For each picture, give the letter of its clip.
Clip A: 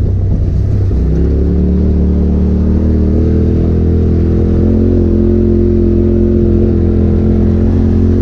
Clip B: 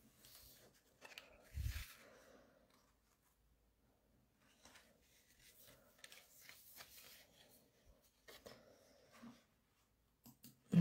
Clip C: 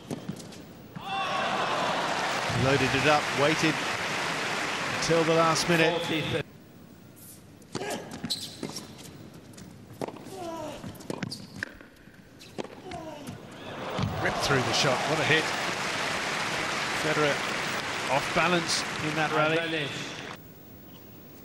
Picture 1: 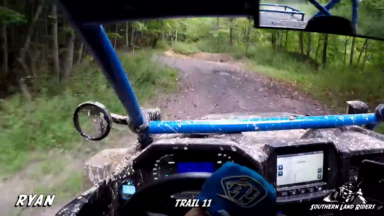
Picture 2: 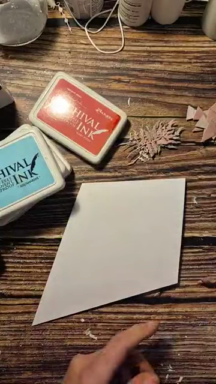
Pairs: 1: A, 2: B